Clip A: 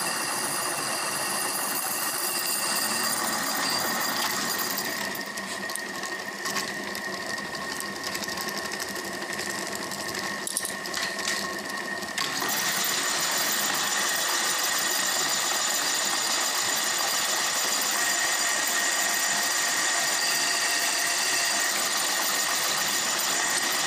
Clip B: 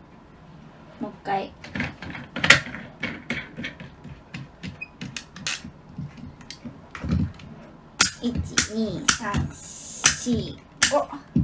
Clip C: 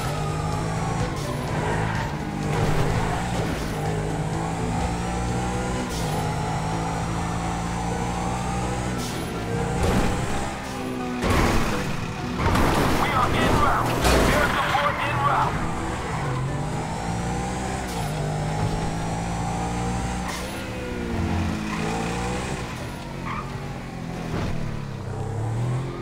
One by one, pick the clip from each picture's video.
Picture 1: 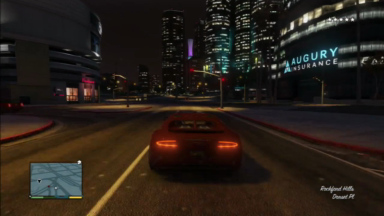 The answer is C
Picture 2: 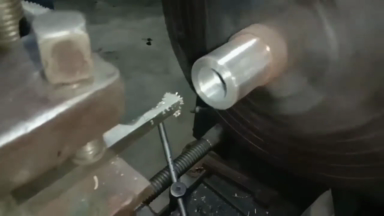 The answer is A